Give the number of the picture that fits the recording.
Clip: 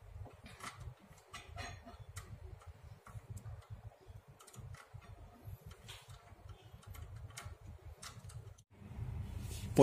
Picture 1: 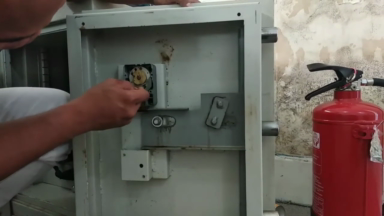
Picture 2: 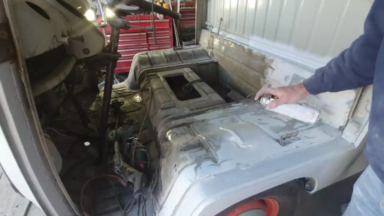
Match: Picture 1